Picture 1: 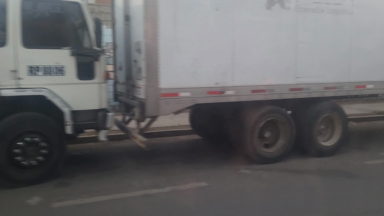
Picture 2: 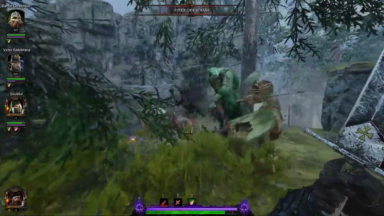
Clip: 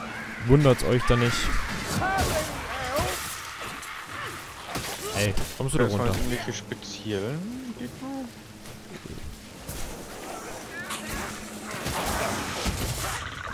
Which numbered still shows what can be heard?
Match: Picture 2